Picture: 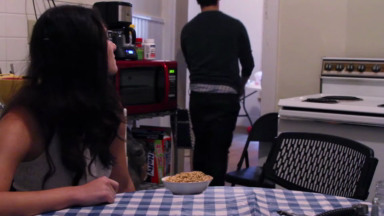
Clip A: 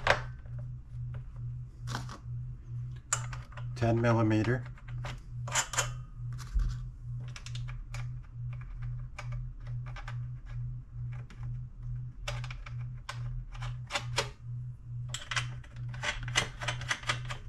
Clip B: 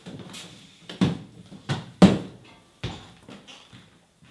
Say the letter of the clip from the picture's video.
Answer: B